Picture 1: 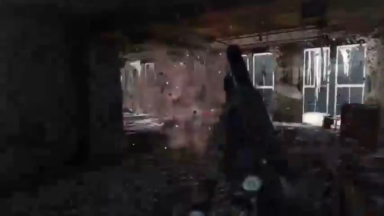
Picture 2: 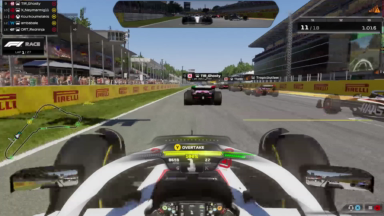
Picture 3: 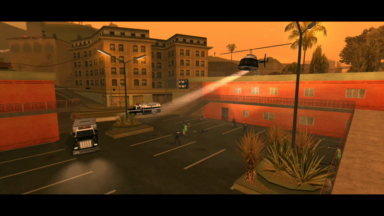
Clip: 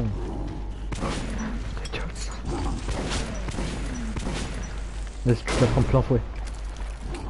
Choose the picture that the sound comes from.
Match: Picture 1